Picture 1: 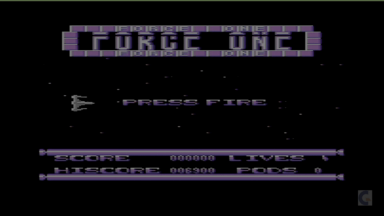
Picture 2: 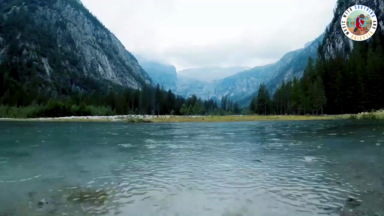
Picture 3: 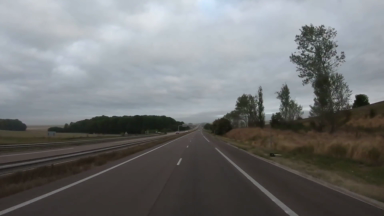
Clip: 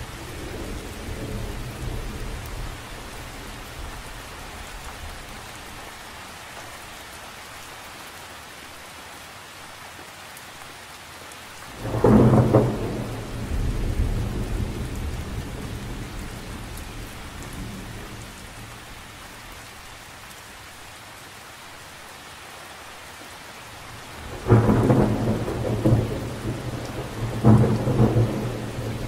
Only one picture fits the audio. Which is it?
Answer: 2